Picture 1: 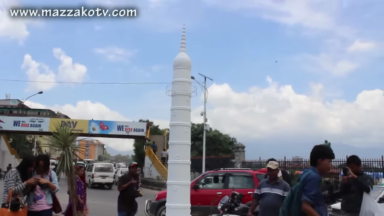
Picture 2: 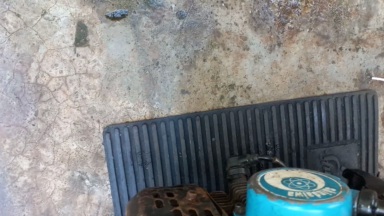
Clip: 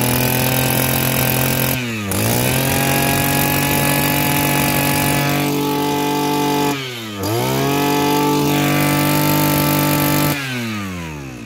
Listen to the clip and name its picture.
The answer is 2